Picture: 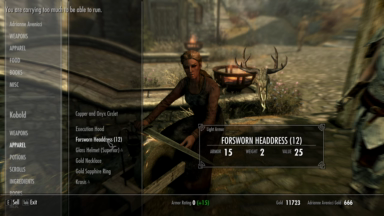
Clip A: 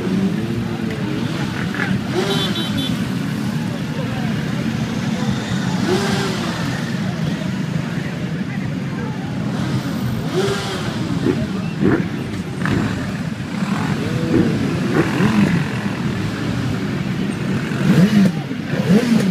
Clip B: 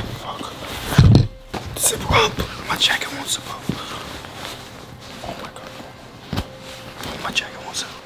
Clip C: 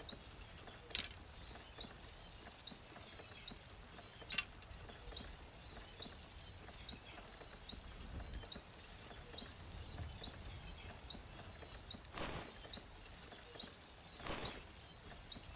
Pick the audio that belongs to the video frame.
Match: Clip C